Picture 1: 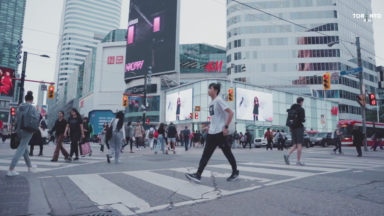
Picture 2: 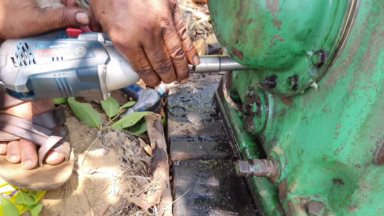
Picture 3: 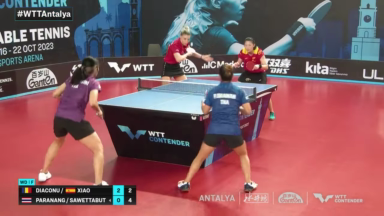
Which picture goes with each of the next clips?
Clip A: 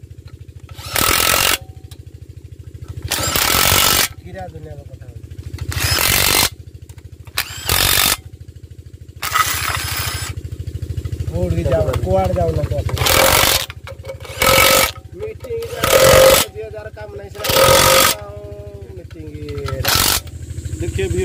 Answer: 2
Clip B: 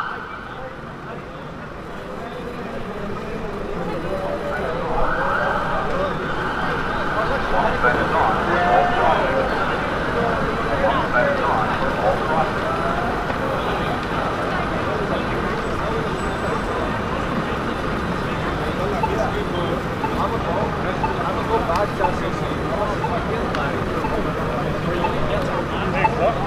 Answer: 1